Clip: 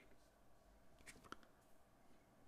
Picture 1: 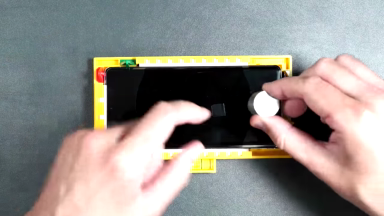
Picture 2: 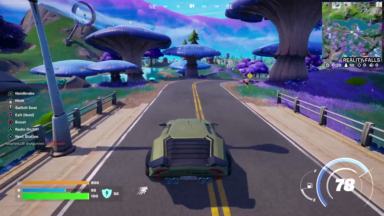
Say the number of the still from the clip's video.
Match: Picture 1